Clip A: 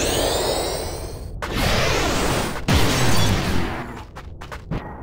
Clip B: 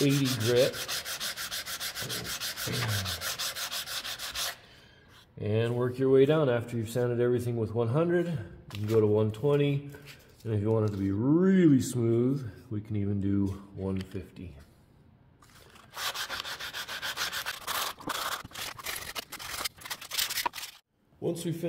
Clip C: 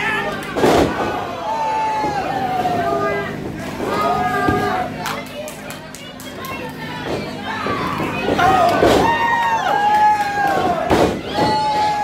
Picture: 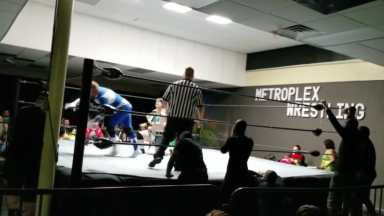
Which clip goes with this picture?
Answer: C